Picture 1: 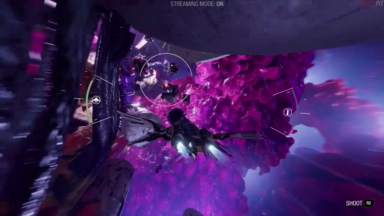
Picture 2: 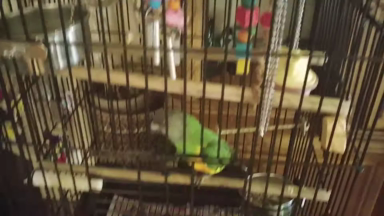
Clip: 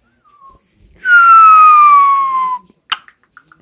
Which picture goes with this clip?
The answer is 2